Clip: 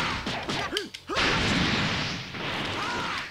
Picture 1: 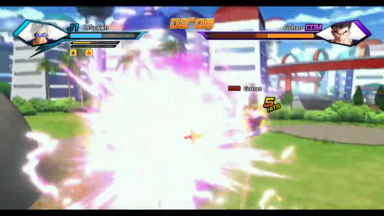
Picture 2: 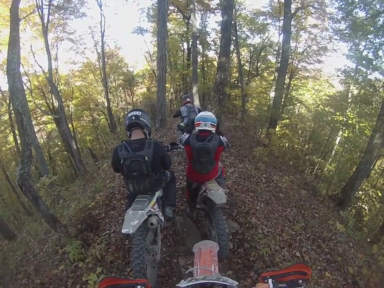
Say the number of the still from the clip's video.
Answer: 1